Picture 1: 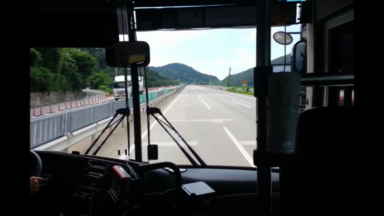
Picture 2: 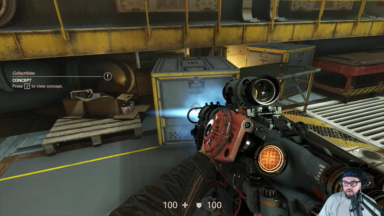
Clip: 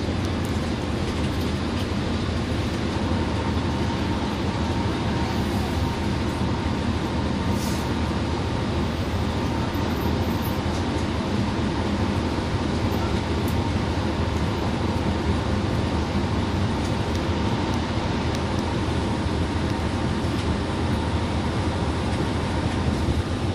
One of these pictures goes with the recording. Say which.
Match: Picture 1